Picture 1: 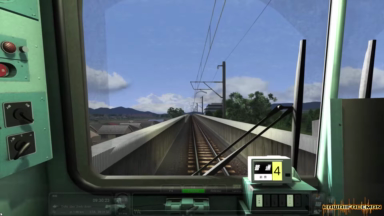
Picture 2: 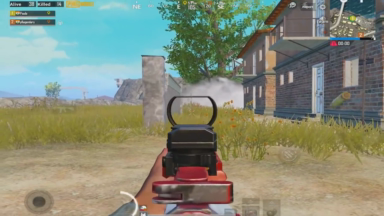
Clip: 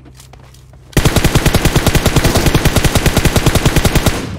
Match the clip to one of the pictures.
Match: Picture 2